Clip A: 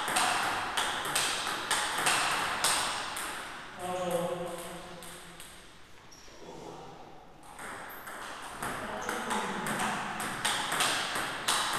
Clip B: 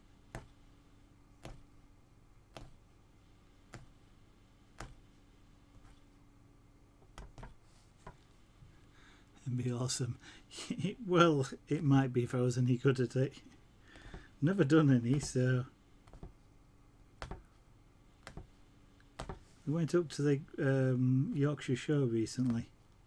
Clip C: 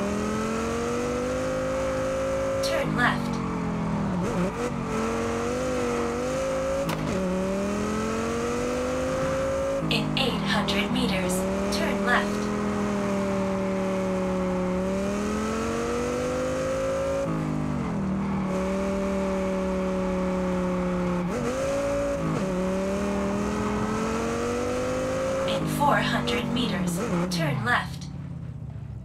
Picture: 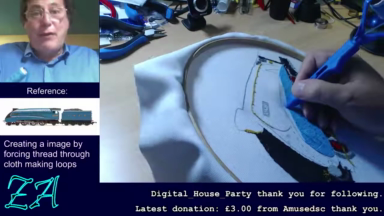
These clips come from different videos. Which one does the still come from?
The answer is B